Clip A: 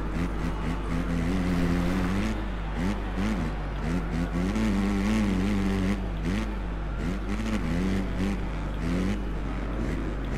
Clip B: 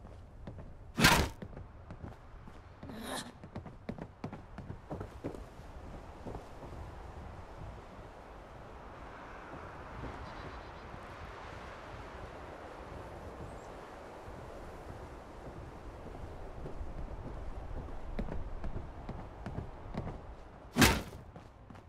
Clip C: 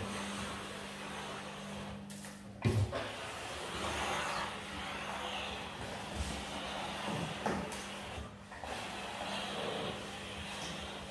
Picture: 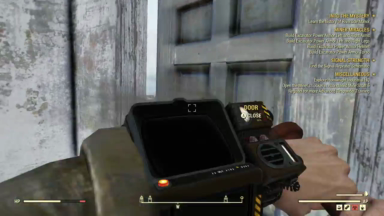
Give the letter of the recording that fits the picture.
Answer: B